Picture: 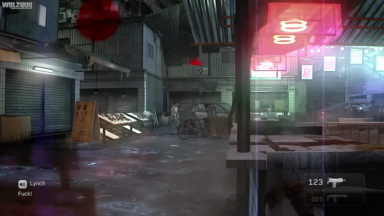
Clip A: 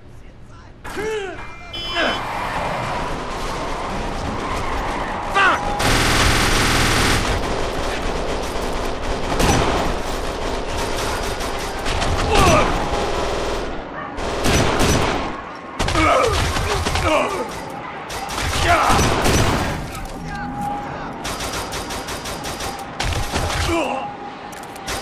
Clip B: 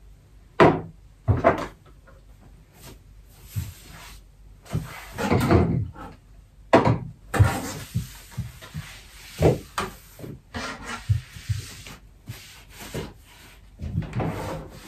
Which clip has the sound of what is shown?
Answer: A